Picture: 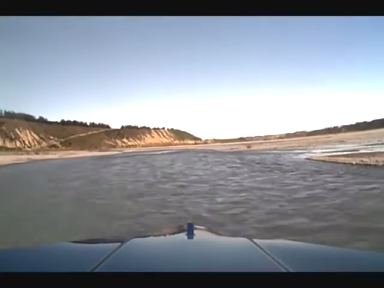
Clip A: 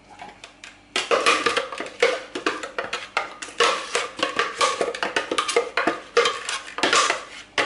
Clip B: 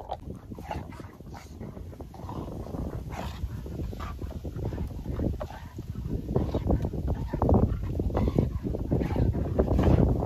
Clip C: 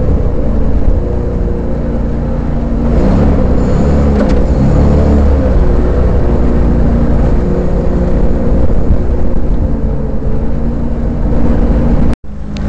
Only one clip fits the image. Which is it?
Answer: C